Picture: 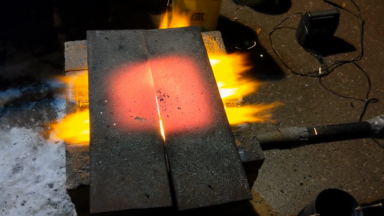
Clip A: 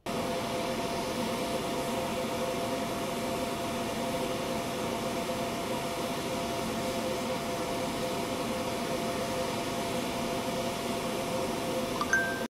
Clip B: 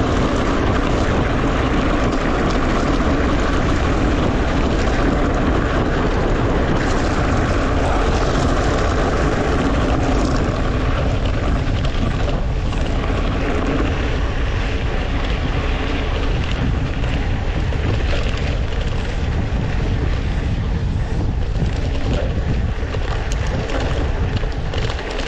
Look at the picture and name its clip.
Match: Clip A